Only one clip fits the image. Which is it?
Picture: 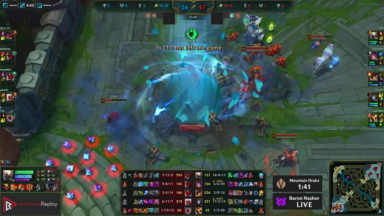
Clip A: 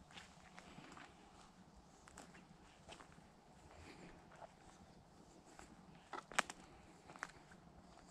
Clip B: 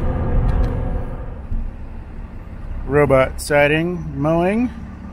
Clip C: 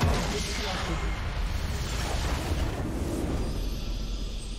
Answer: C